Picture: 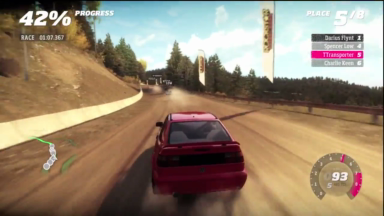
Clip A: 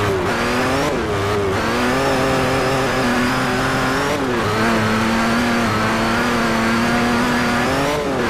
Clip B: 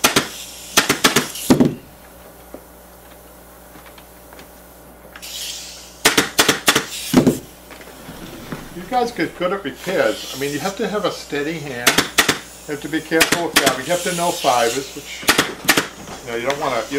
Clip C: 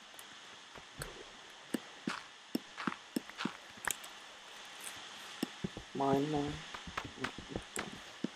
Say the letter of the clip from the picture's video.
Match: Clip A